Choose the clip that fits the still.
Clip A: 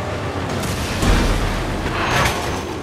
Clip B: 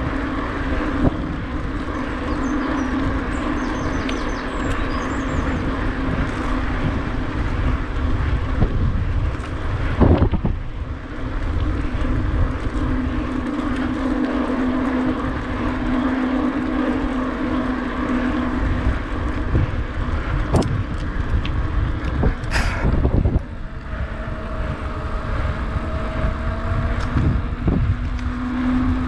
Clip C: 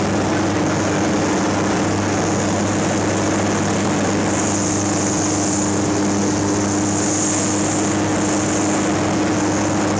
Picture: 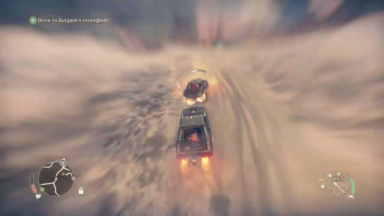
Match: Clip A